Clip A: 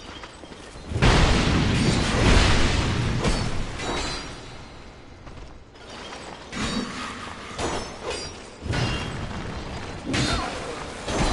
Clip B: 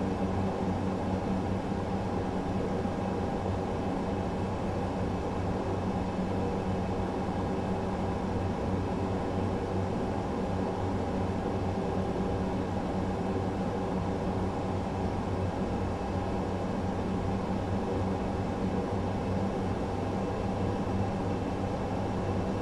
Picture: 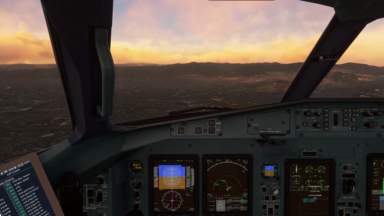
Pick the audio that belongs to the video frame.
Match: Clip B